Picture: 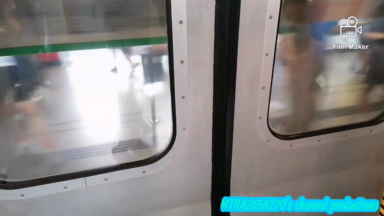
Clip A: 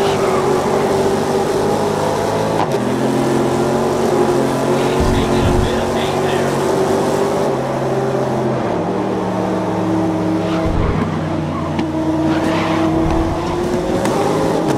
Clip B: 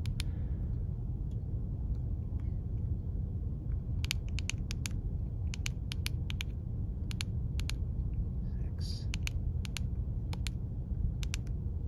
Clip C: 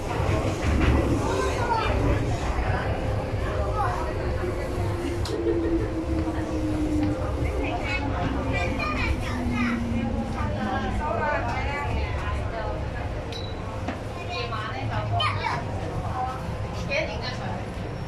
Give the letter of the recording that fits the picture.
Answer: C